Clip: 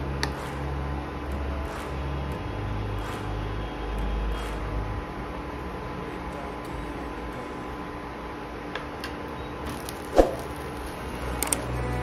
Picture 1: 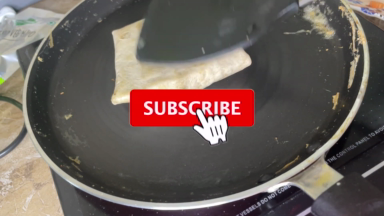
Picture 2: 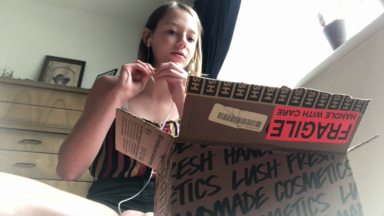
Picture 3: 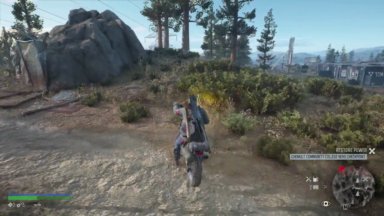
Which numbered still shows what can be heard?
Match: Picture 1